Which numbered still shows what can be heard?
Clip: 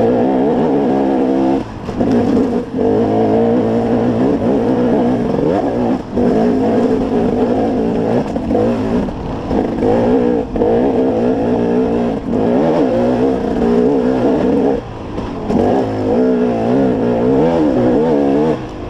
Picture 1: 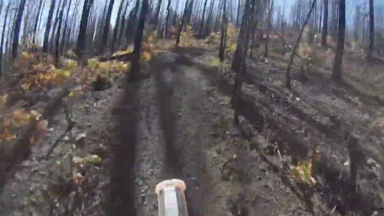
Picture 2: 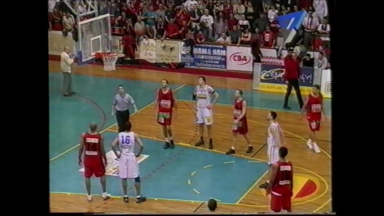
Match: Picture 1